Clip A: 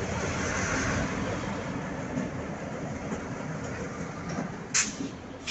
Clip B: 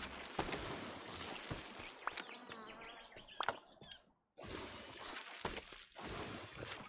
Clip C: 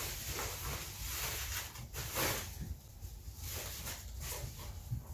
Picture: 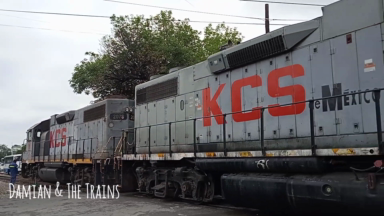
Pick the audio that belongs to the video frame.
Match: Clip A